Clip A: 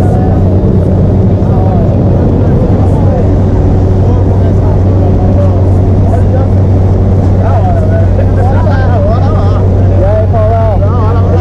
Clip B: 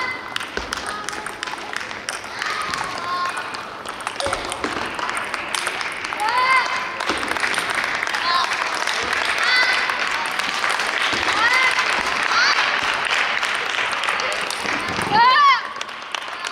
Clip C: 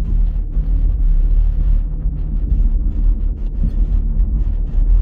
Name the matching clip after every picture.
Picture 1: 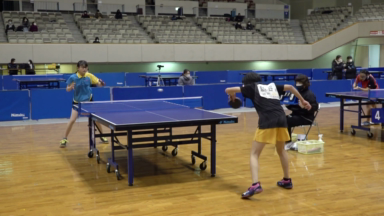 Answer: B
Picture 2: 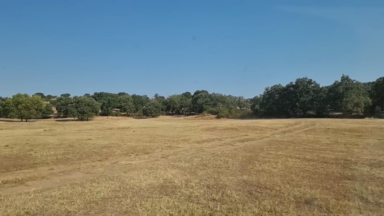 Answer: C